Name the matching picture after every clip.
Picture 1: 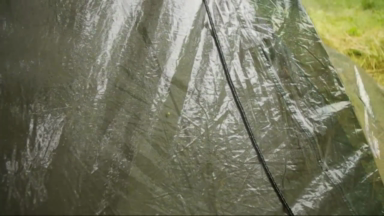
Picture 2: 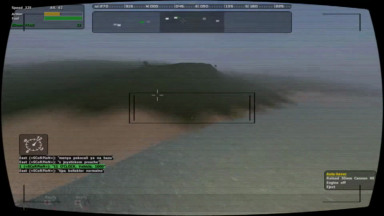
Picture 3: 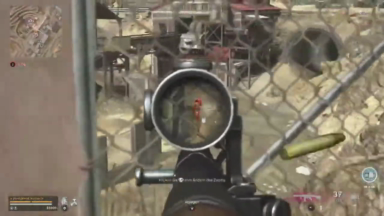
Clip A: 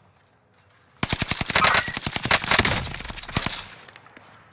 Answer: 3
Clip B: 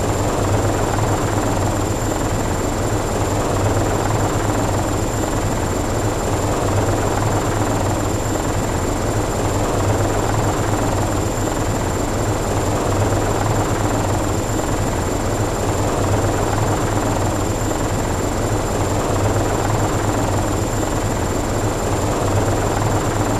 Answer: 2